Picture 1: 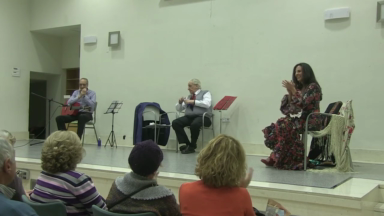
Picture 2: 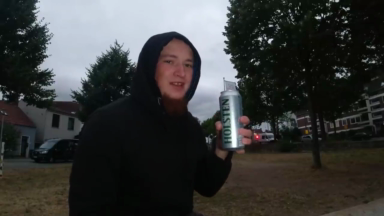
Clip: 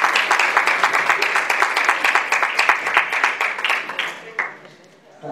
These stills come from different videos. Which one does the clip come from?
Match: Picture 1